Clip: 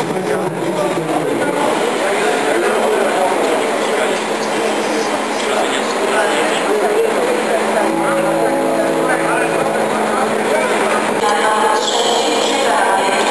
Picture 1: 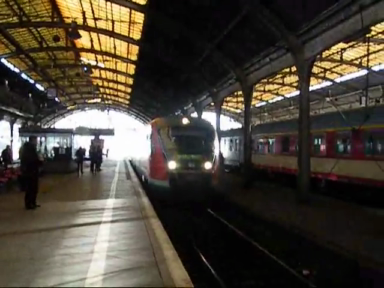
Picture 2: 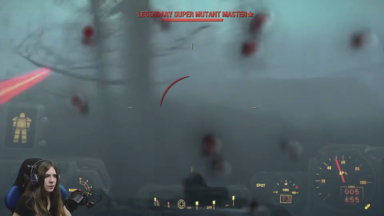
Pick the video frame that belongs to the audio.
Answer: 1